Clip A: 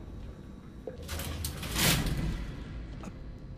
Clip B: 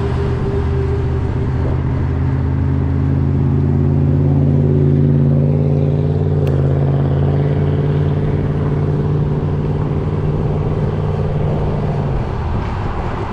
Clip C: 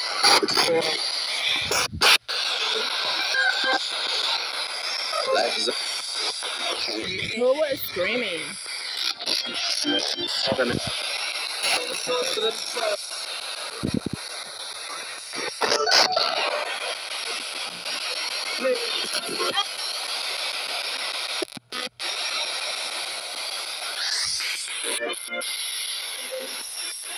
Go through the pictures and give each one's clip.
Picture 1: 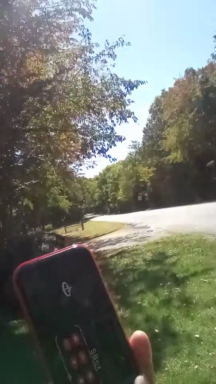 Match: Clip C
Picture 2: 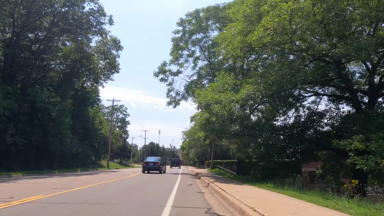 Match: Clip B